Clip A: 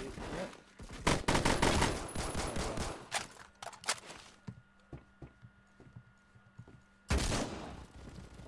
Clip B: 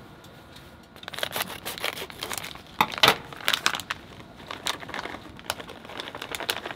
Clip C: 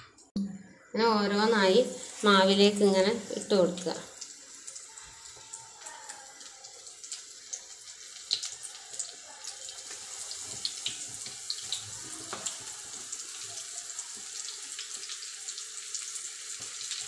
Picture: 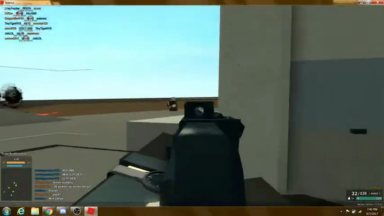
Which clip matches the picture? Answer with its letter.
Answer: A